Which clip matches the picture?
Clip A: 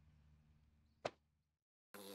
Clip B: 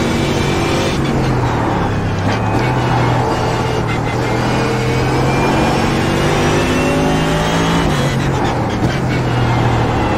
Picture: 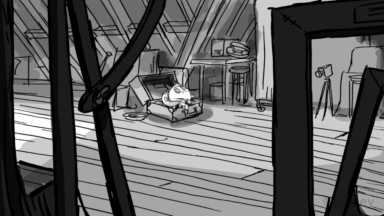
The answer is A